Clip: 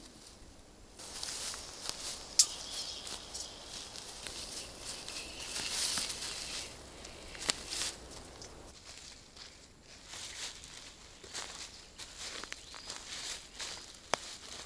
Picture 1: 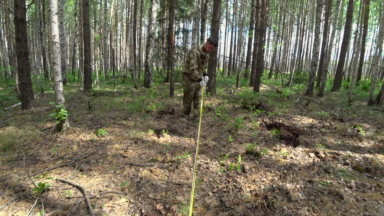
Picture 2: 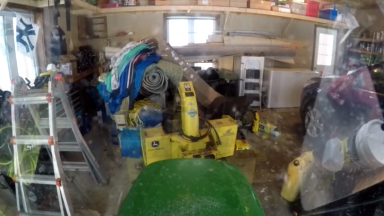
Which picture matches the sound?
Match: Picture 1